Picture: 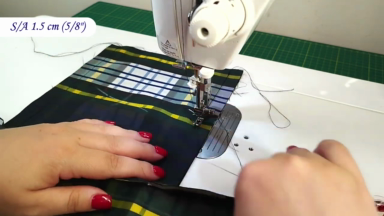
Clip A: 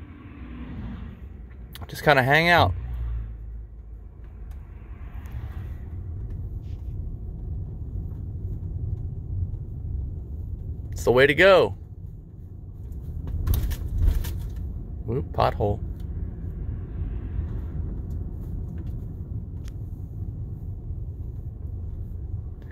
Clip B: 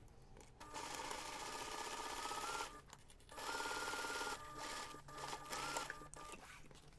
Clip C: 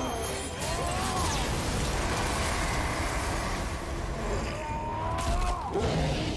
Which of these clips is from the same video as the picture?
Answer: B